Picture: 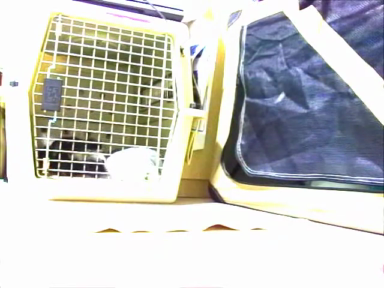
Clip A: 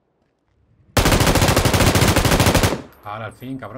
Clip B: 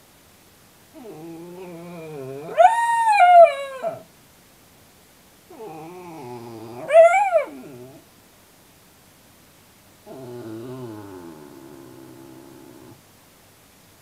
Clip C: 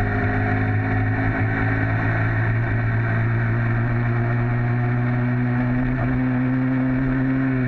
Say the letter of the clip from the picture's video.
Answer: B